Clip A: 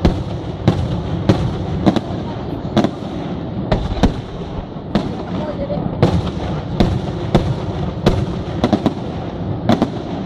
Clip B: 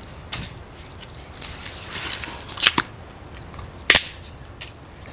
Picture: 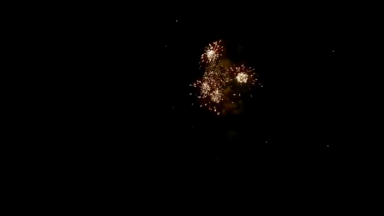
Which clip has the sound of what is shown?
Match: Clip A